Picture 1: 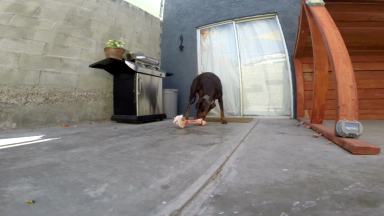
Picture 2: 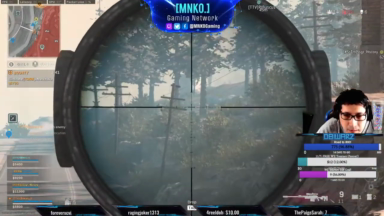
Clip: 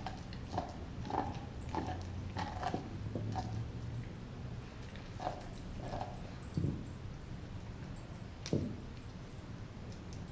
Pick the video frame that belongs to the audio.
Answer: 1